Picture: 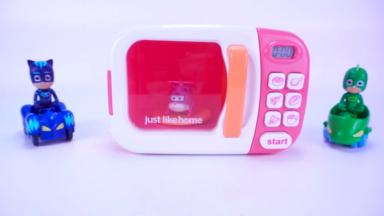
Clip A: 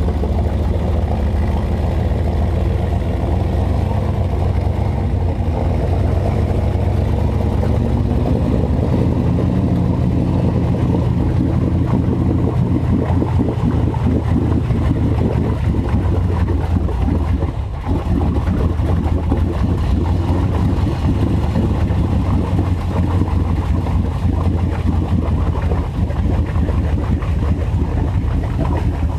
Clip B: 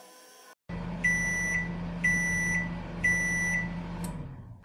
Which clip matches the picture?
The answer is B